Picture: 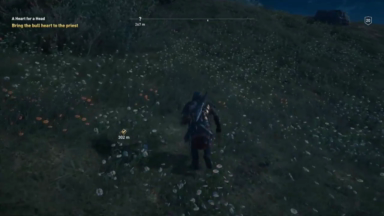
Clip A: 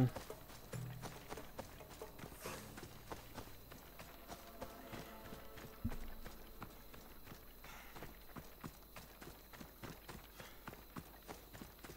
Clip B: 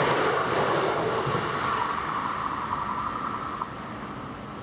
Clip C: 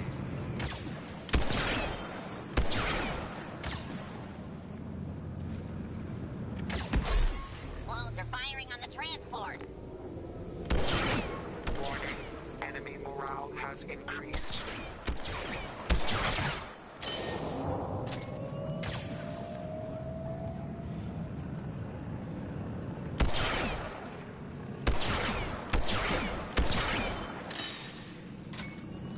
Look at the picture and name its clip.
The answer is A